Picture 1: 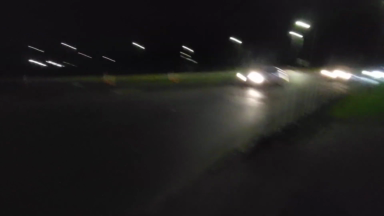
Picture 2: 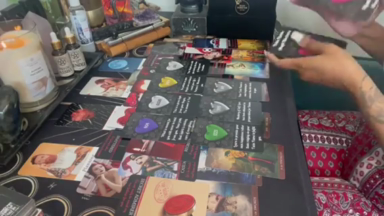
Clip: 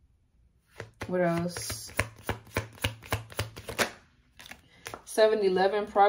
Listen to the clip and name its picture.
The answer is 2